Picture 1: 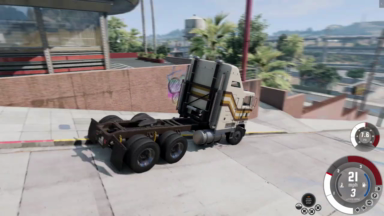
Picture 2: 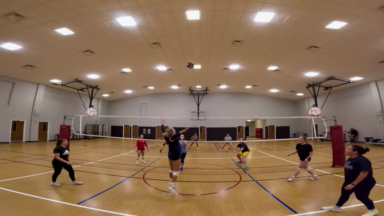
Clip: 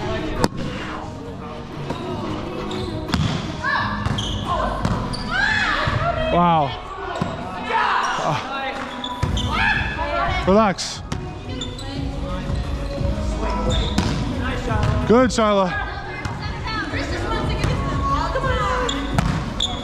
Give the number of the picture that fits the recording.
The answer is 2